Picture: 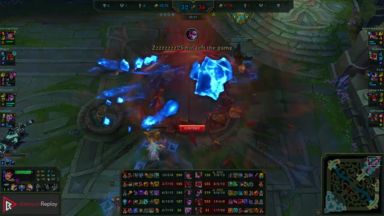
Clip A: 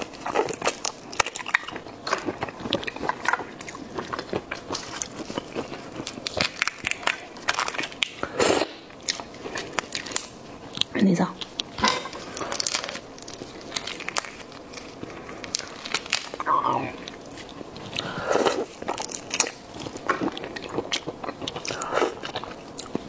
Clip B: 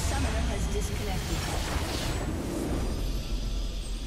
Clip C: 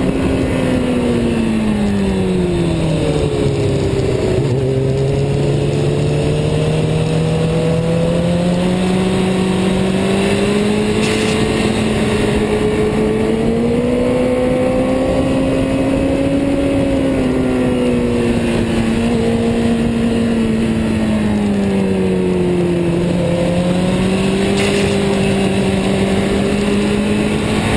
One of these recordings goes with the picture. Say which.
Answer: B